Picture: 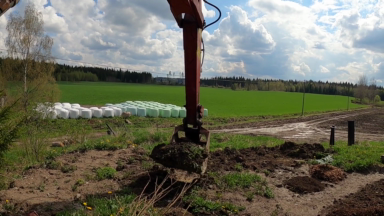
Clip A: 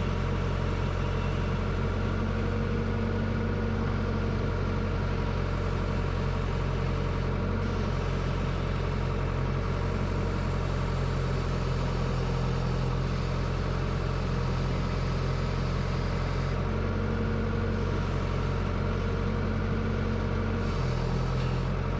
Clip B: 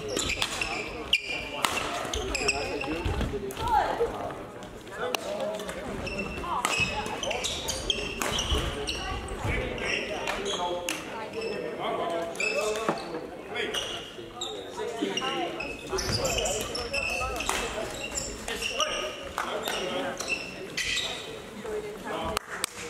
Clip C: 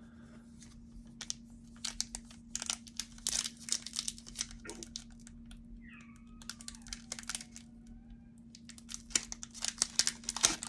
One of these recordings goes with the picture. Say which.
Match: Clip A